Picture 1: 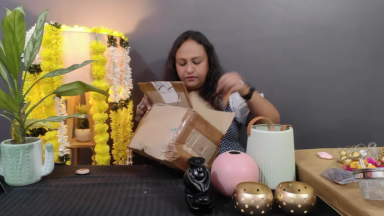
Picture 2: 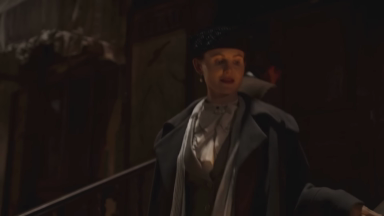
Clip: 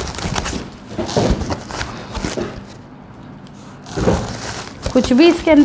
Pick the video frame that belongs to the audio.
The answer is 1